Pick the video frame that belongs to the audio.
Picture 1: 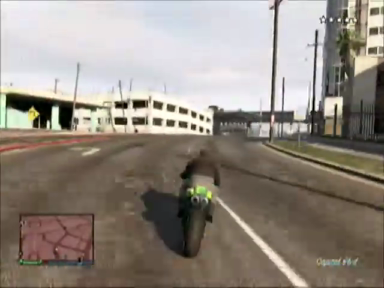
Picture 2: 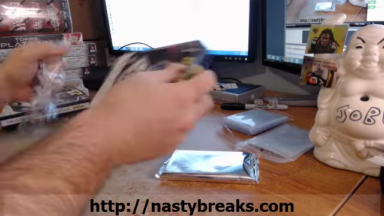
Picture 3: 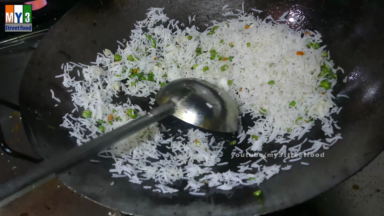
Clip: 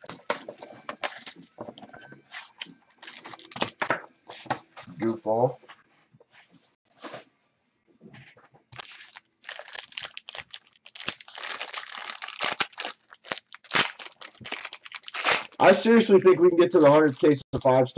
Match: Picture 2